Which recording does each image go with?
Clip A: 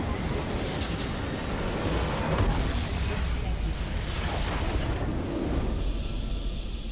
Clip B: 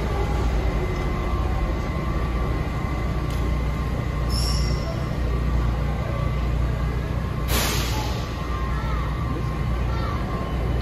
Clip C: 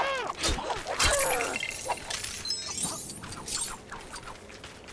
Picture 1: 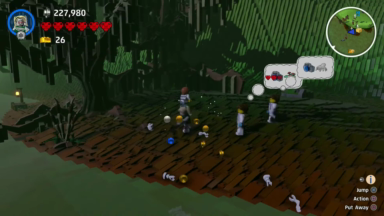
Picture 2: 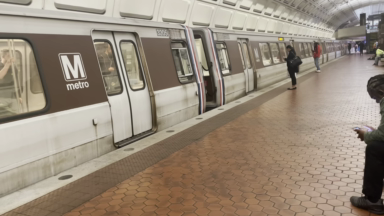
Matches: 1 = C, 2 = B